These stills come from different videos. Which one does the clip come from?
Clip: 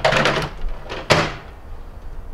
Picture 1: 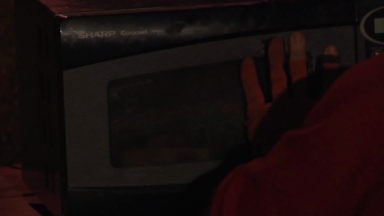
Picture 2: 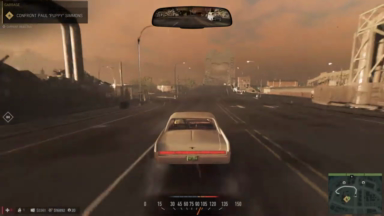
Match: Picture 1